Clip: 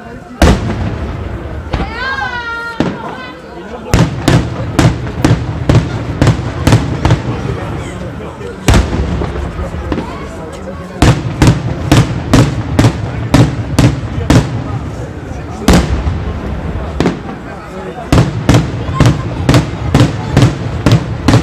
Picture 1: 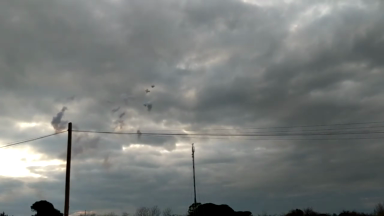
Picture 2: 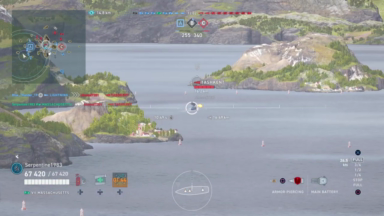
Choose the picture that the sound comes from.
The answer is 1